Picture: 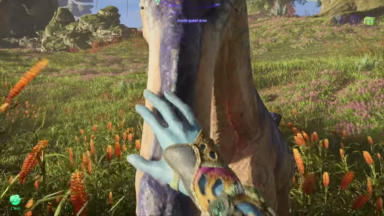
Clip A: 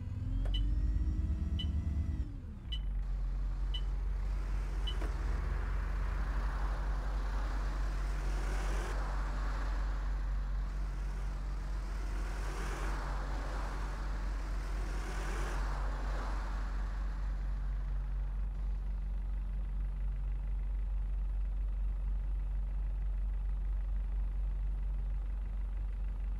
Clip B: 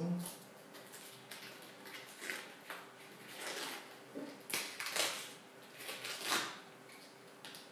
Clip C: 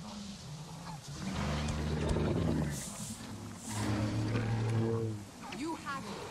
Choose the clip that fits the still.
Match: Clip C